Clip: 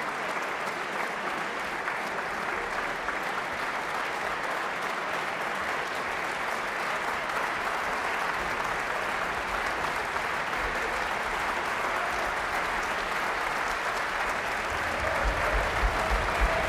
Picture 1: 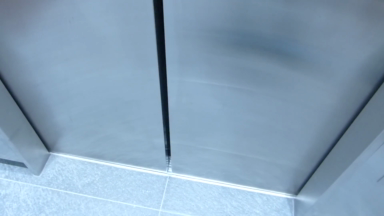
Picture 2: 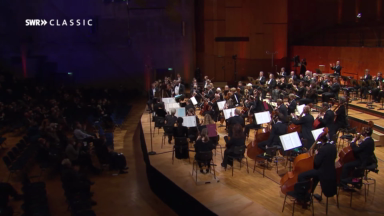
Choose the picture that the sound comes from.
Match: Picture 2